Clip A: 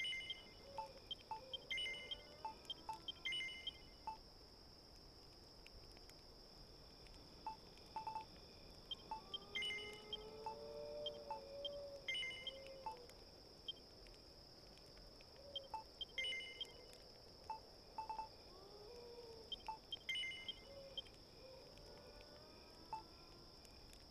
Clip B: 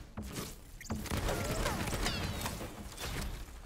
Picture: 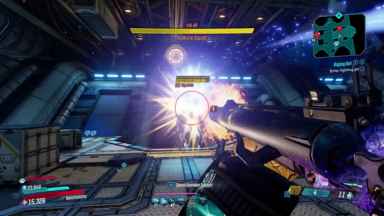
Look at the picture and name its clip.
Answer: B